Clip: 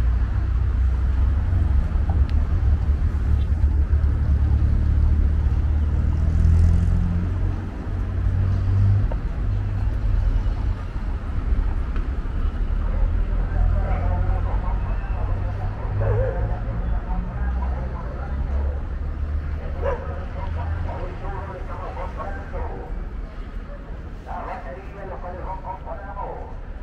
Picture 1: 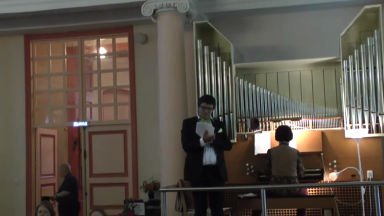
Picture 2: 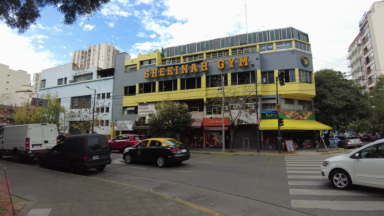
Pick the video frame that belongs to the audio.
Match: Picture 2